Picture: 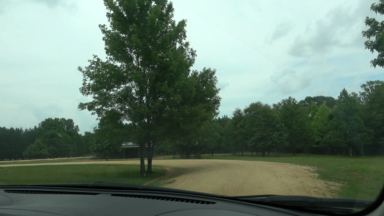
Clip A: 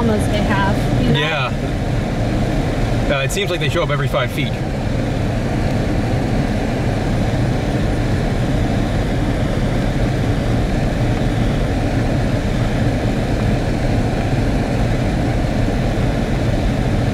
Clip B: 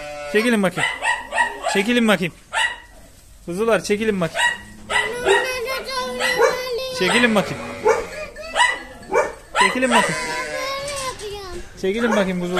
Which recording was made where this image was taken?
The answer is A